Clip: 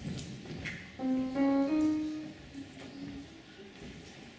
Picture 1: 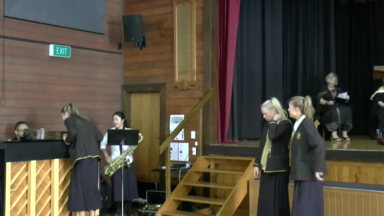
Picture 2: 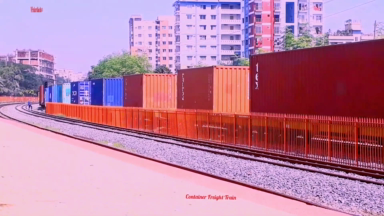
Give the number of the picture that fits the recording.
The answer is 1